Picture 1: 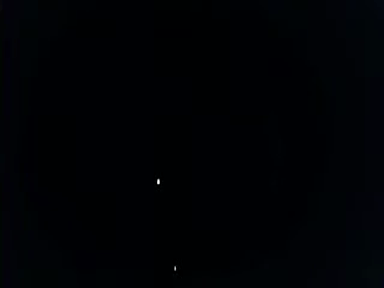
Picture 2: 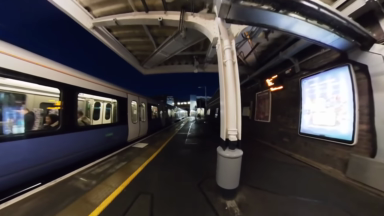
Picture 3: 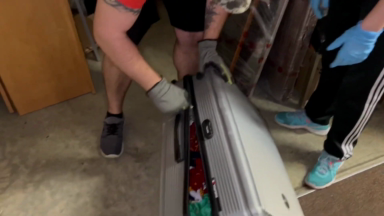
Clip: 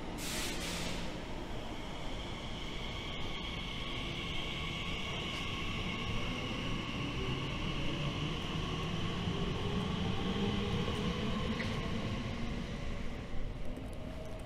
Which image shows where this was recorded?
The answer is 2